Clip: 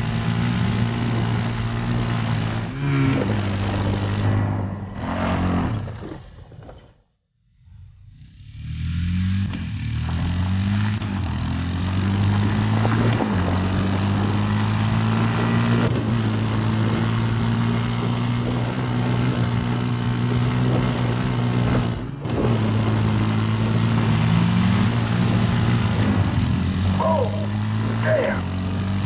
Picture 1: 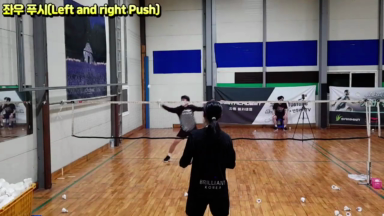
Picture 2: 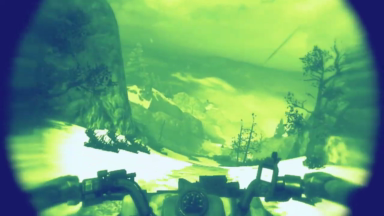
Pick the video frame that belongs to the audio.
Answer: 2